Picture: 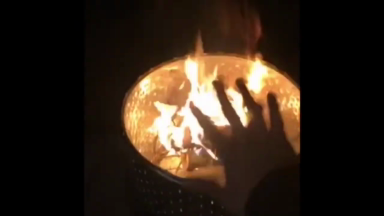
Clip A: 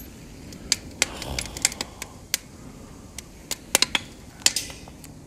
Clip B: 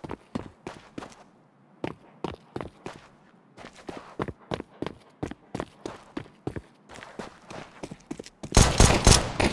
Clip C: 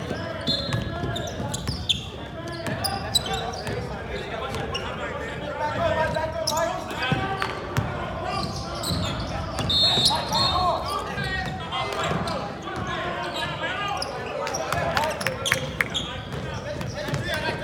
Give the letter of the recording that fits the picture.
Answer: A